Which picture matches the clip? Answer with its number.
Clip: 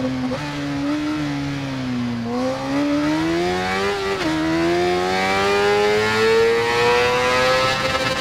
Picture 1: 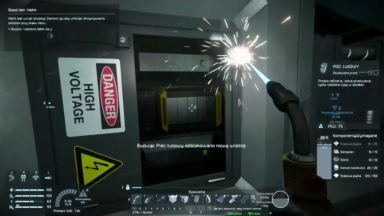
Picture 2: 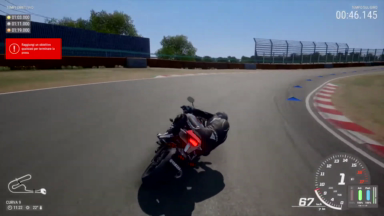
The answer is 2